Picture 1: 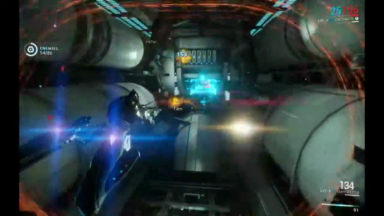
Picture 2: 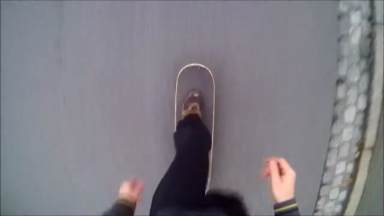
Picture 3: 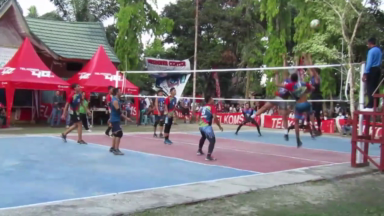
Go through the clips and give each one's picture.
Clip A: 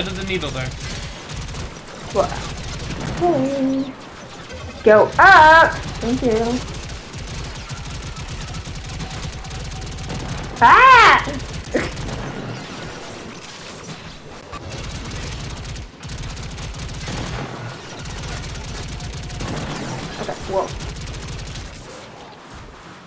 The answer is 1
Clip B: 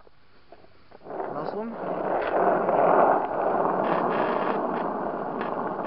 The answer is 2